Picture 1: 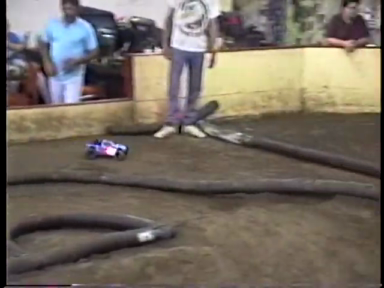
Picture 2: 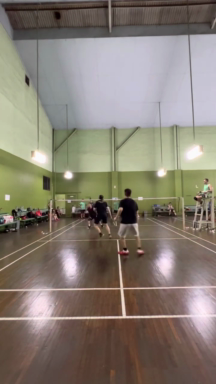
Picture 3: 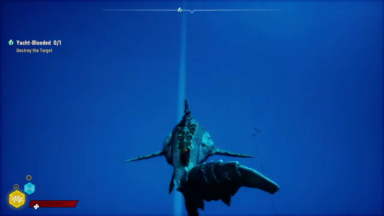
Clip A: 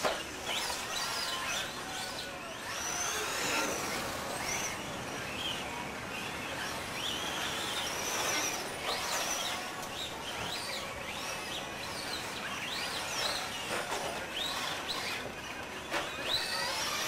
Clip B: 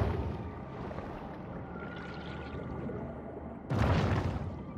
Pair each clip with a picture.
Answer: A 1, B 3